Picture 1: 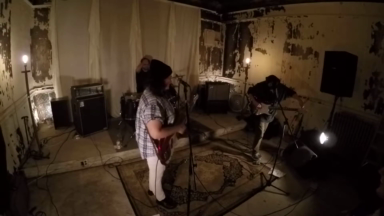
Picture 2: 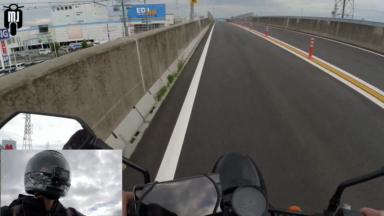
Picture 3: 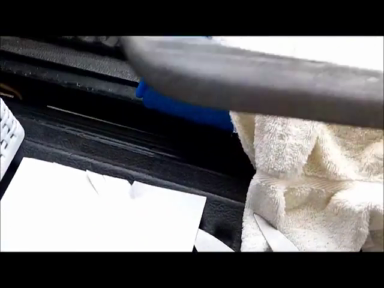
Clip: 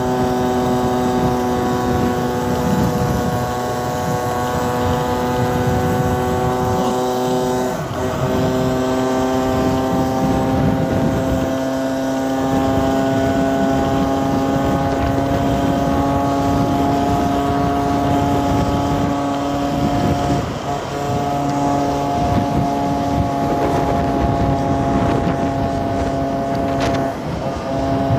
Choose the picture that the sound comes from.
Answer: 2